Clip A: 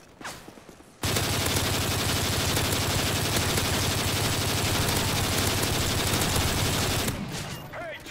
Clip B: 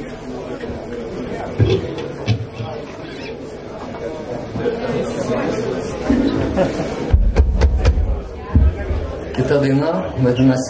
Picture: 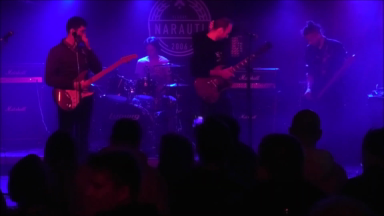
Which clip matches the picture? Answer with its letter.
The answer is B